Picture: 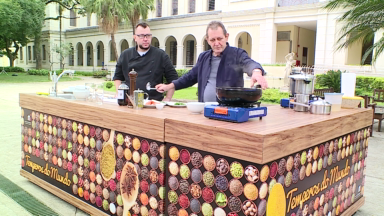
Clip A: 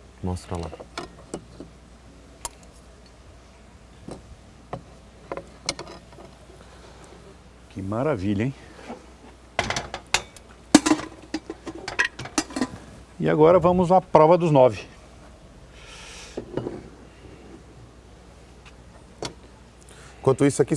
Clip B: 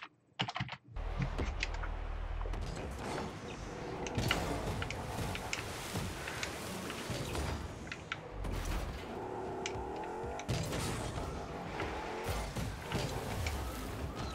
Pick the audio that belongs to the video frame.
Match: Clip A